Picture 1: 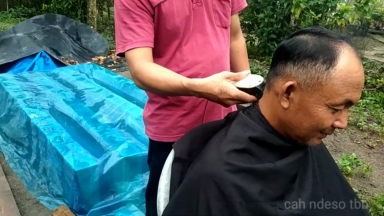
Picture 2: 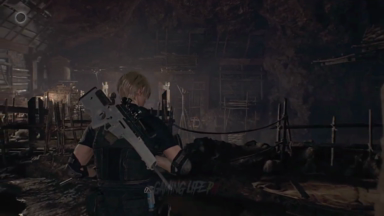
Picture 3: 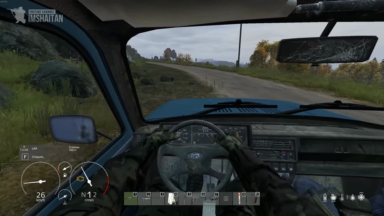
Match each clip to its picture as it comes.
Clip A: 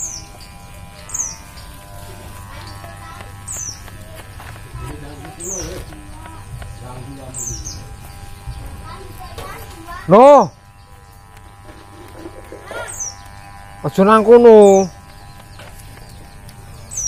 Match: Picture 1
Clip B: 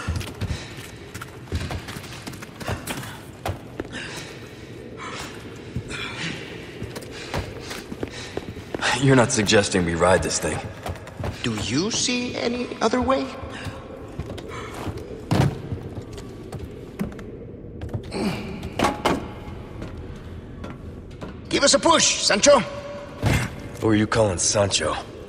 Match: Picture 2